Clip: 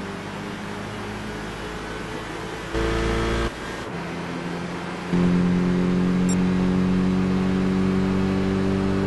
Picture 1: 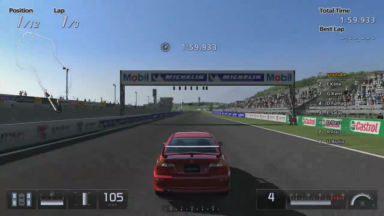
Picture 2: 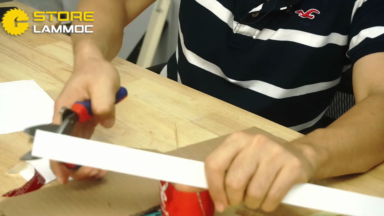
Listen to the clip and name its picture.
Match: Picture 1